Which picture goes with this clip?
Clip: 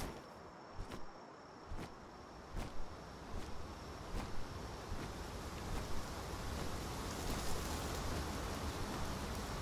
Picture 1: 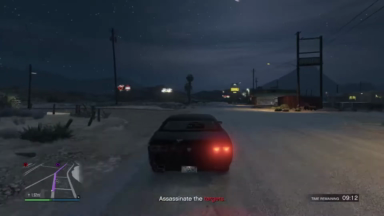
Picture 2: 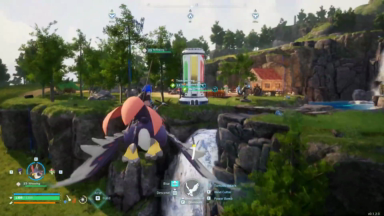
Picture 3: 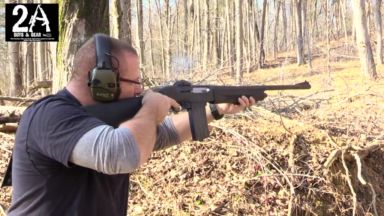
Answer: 2